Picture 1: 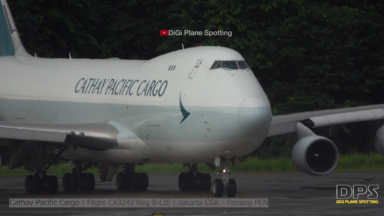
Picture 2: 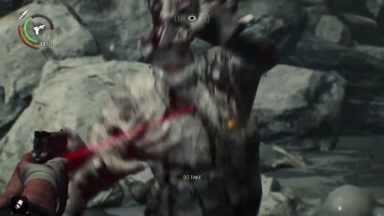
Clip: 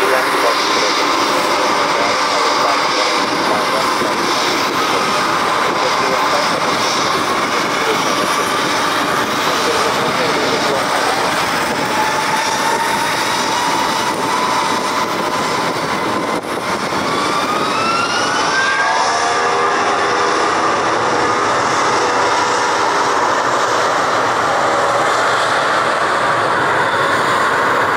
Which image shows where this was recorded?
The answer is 1